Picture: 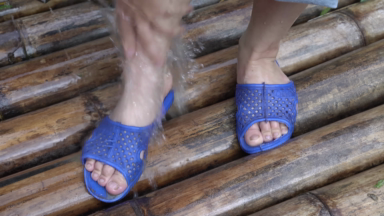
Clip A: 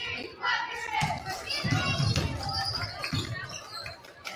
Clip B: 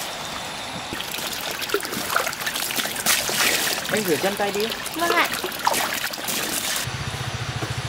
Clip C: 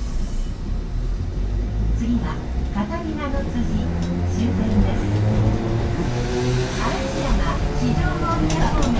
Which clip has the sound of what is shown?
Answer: B